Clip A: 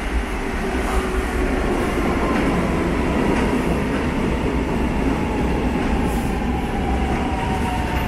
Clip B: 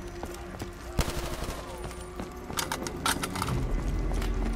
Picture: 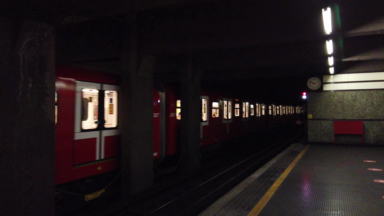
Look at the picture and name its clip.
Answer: A